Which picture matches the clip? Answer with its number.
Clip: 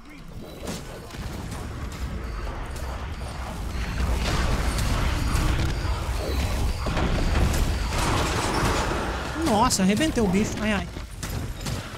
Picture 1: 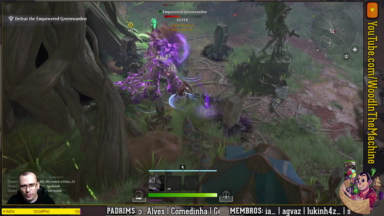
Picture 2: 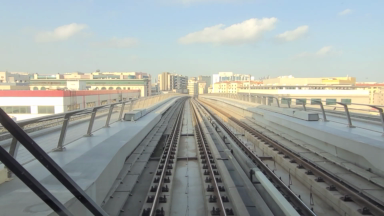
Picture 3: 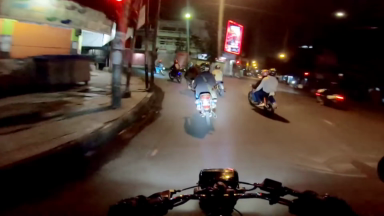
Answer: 1